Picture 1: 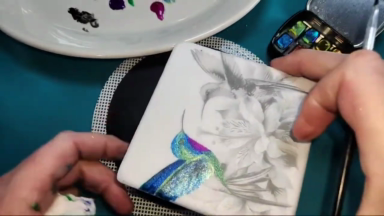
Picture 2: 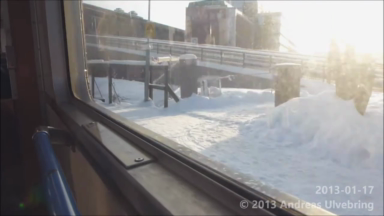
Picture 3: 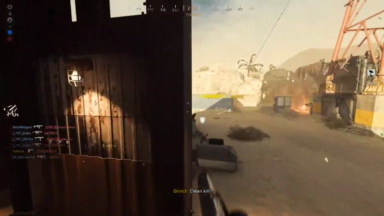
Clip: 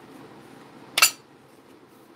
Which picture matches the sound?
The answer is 1